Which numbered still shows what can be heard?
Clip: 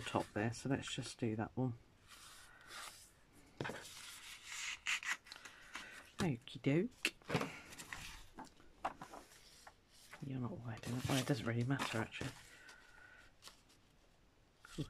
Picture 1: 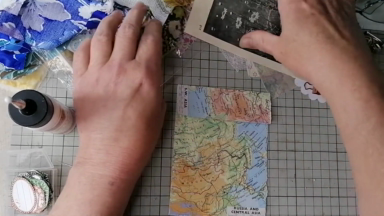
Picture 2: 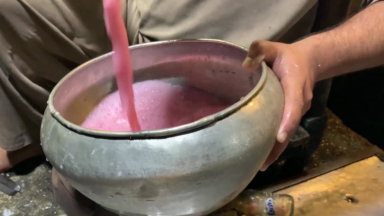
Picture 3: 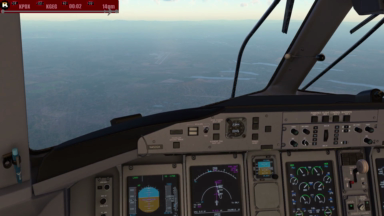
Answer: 1